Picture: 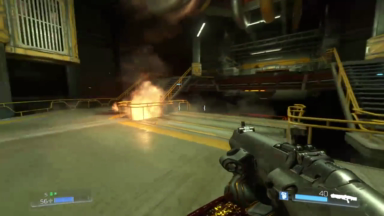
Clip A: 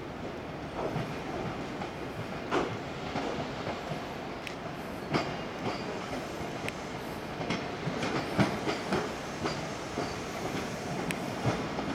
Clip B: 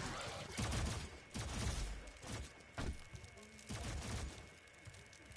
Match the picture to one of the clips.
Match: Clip B